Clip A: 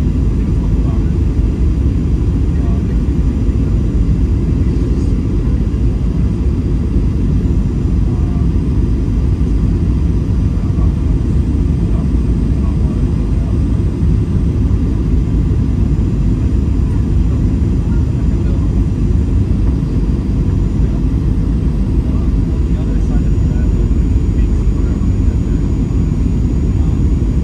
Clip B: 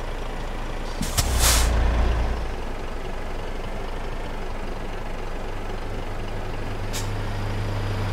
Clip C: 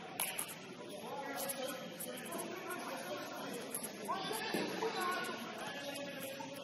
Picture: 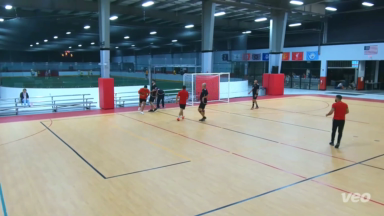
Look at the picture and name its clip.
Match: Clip C